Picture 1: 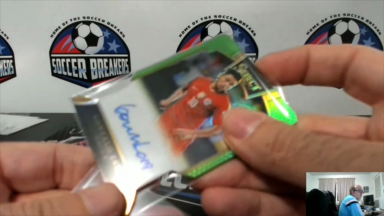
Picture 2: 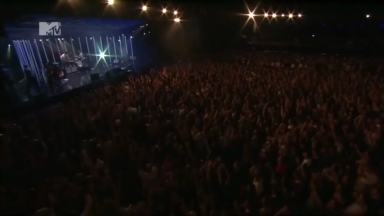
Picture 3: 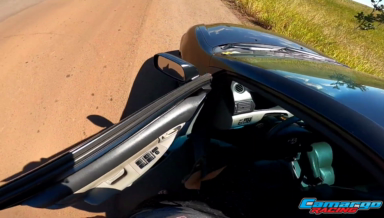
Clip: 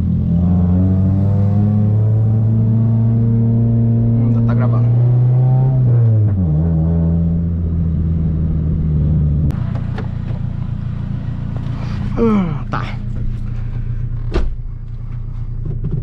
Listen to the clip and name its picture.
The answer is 3